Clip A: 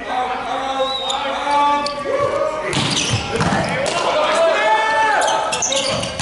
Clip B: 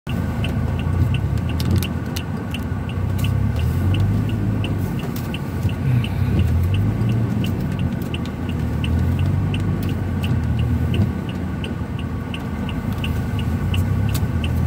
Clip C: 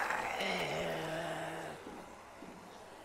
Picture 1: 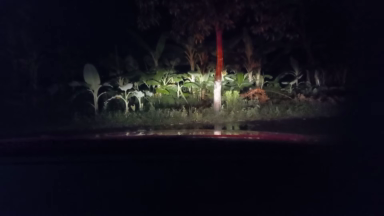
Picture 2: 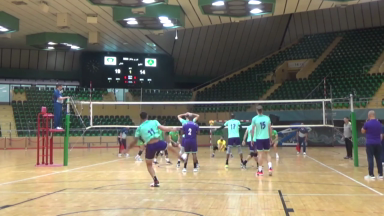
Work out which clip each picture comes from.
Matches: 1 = B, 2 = A